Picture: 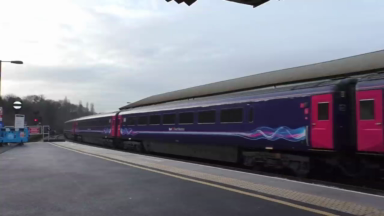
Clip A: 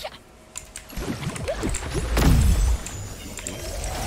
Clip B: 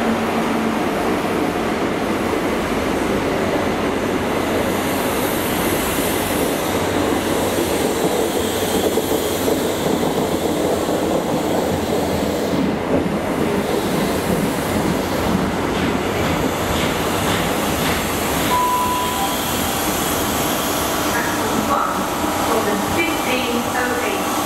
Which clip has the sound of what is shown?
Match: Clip B